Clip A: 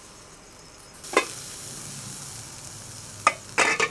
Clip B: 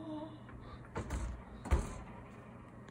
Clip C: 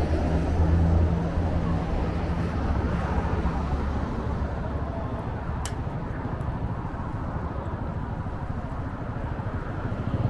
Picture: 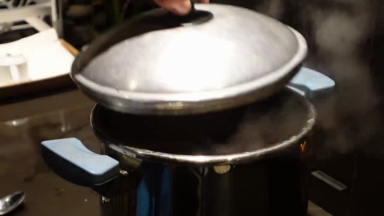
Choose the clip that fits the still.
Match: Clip A